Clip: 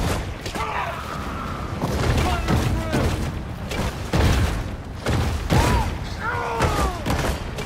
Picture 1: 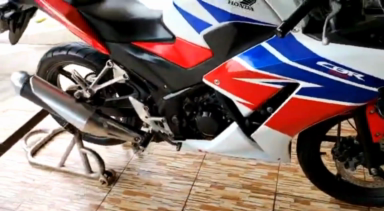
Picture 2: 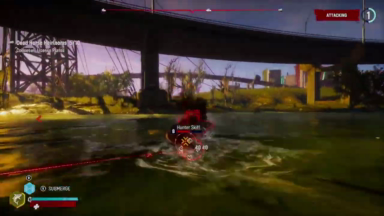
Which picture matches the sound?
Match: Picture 2